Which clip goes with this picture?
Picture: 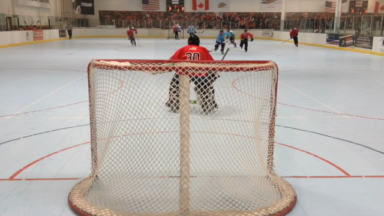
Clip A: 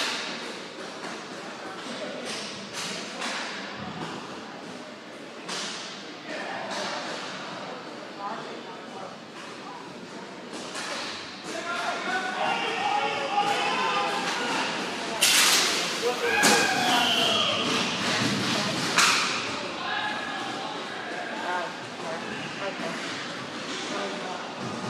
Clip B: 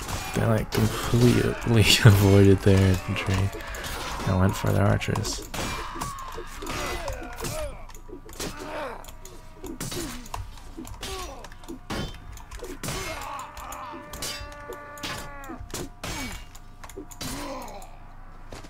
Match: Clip A